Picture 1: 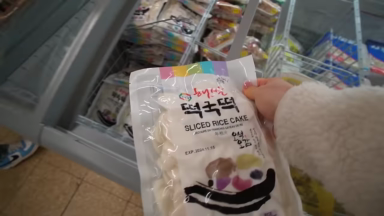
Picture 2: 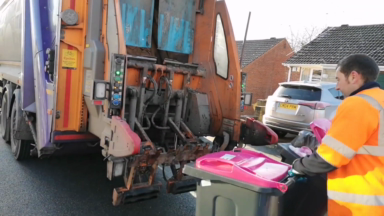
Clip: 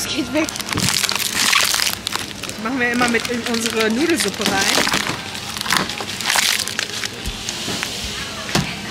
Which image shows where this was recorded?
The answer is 1